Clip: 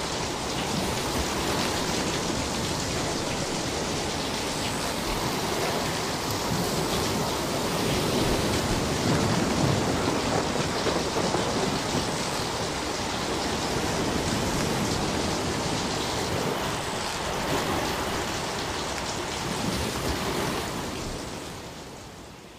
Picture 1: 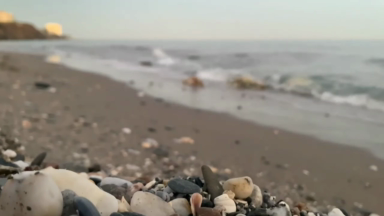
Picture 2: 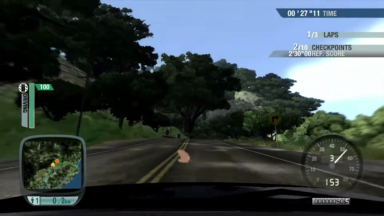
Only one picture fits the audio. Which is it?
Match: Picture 1